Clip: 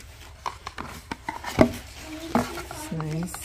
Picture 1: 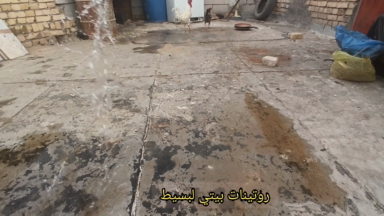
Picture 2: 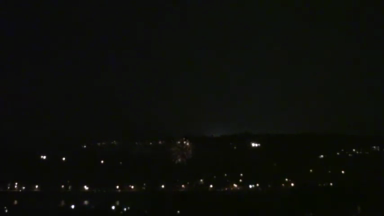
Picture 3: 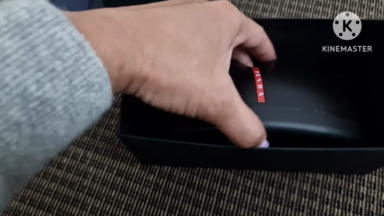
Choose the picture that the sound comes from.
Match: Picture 3